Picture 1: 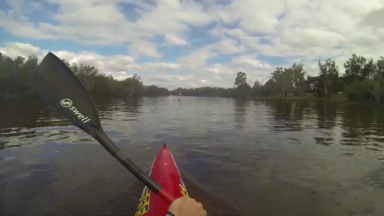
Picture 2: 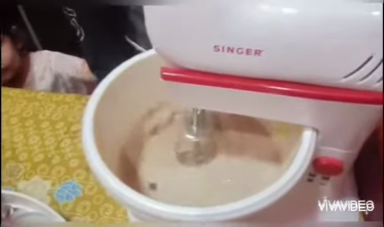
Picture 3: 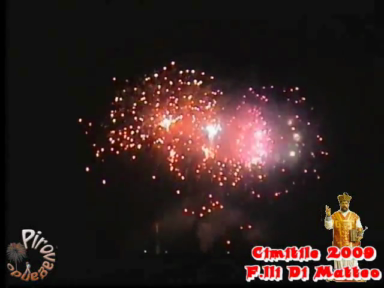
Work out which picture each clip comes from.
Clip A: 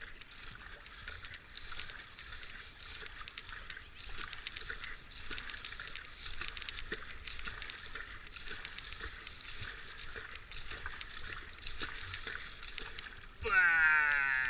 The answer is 1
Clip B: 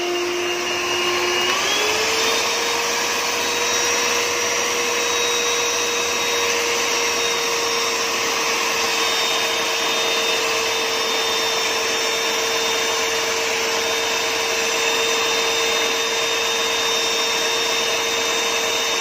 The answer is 2